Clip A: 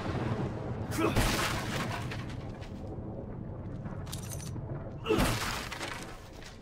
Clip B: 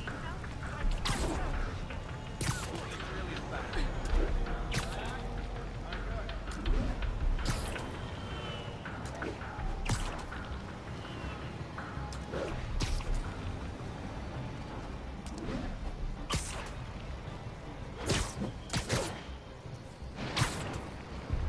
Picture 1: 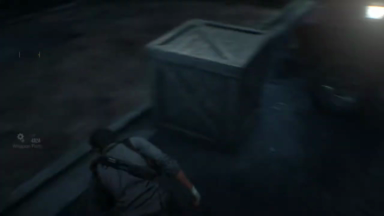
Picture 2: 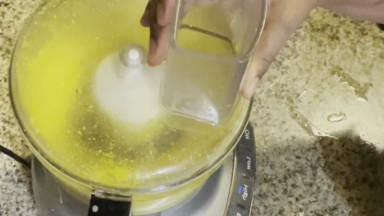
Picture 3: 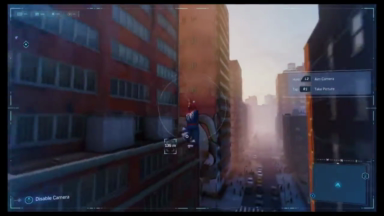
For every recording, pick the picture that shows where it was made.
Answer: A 1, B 3